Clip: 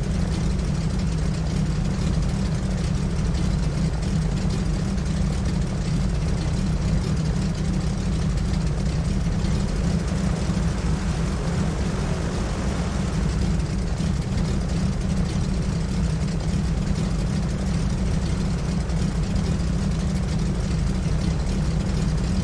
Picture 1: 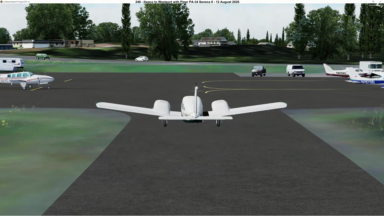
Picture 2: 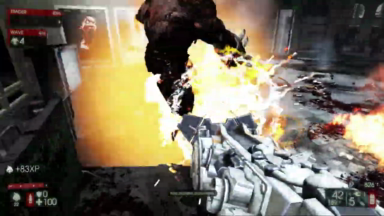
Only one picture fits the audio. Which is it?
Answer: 1